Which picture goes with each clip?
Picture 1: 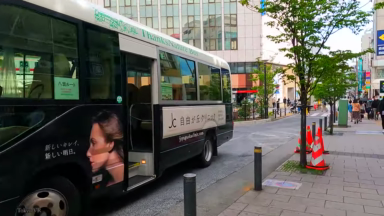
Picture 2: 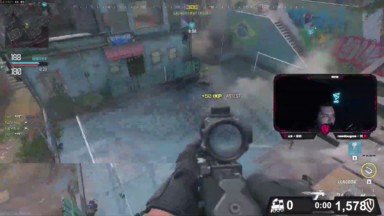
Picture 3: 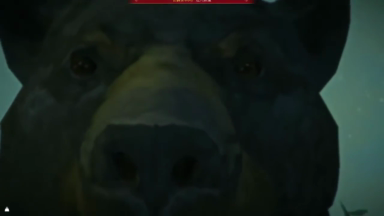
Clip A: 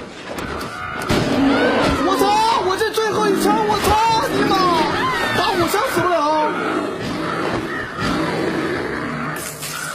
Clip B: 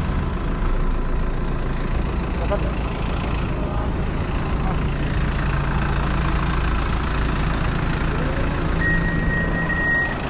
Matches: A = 3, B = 1